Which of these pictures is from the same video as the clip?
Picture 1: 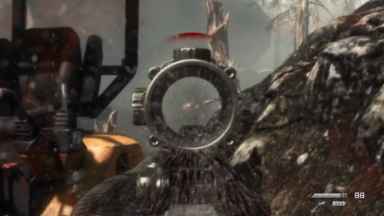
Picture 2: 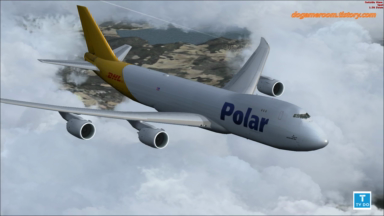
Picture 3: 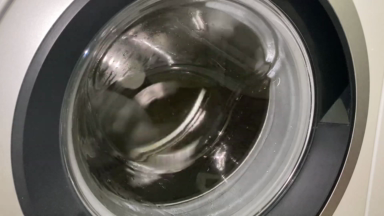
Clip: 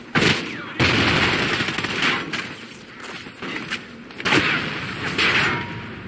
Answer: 1